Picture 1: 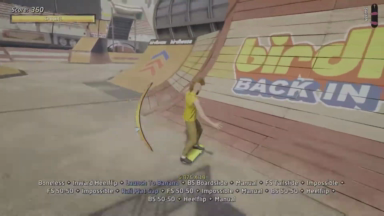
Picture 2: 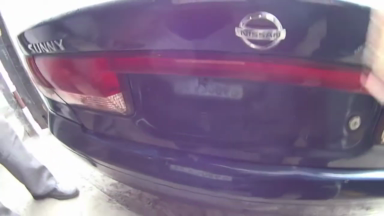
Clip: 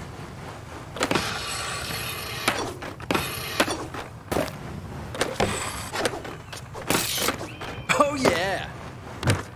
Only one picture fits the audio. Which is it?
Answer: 1